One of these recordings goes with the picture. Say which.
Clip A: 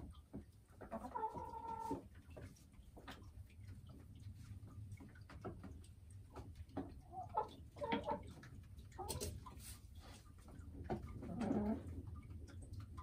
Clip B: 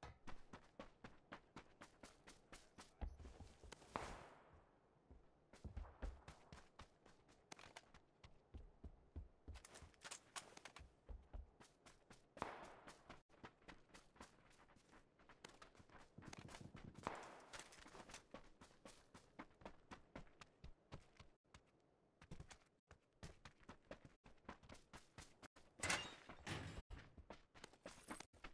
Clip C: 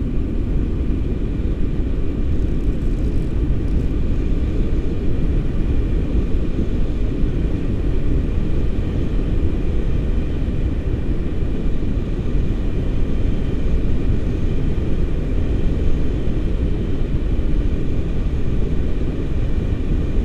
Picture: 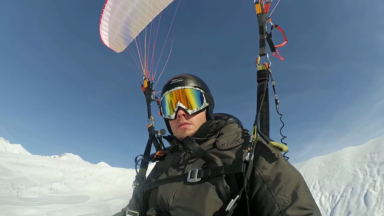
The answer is C